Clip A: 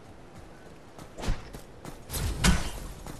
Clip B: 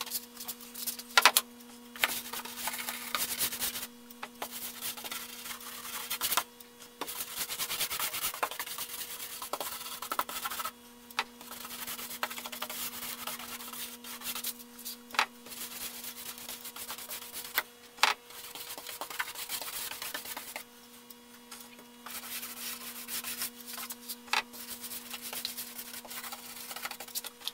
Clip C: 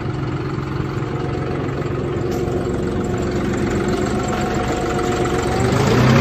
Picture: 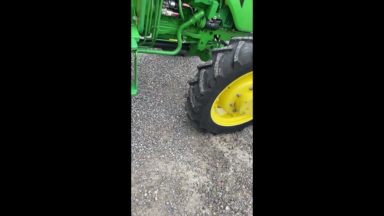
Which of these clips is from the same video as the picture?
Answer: C